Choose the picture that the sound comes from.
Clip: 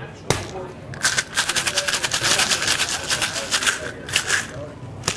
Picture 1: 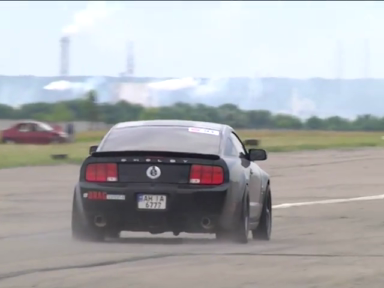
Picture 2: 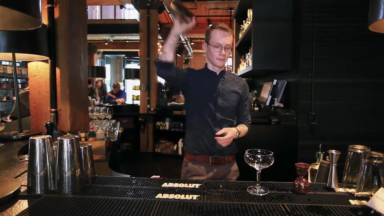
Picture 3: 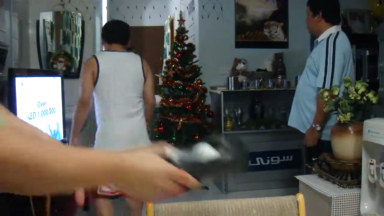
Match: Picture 2